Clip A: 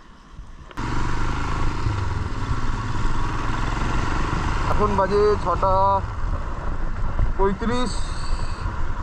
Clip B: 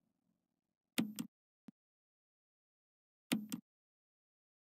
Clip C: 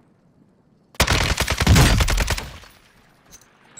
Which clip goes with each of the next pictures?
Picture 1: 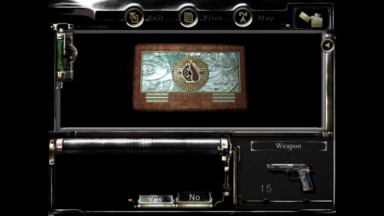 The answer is B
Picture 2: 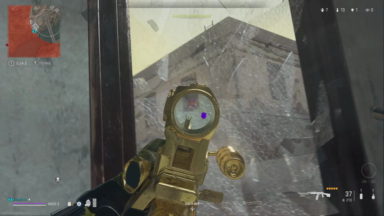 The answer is C